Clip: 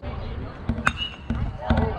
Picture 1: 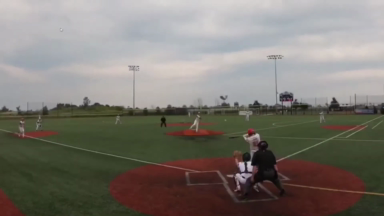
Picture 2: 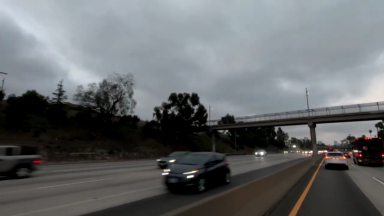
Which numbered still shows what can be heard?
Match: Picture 1